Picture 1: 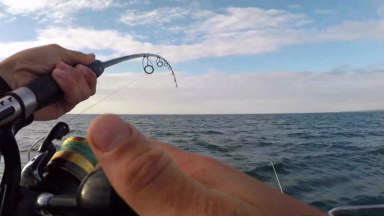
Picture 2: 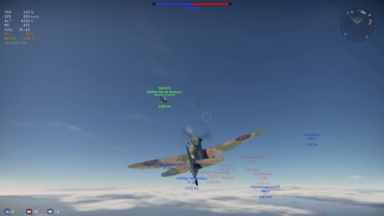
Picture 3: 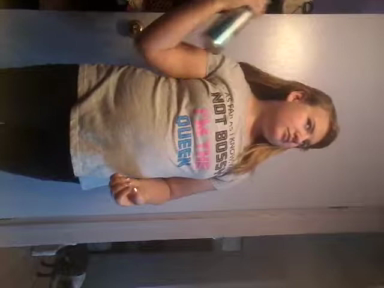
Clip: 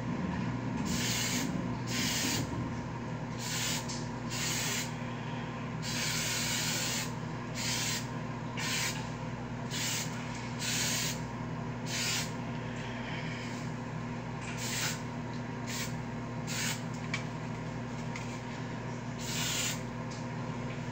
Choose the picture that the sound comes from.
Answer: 3